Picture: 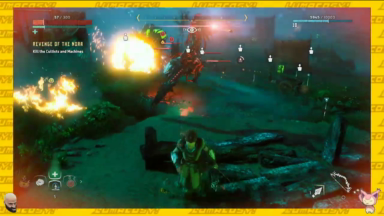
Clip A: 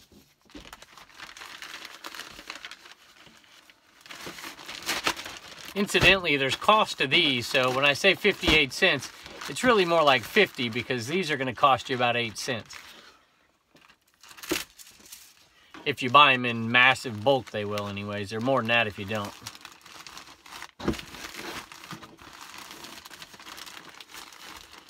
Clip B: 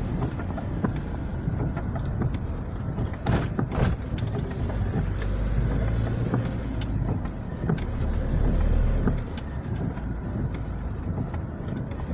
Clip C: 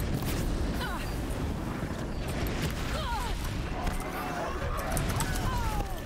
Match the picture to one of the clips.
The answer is C